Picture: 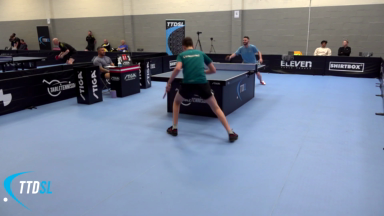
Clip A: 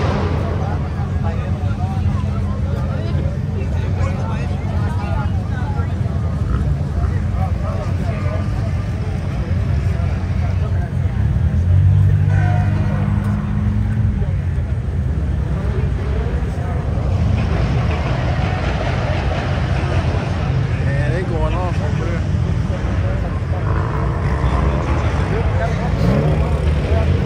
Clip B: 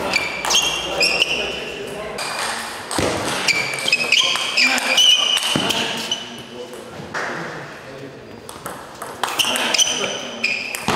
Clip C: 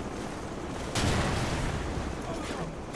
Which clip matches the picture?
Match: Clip B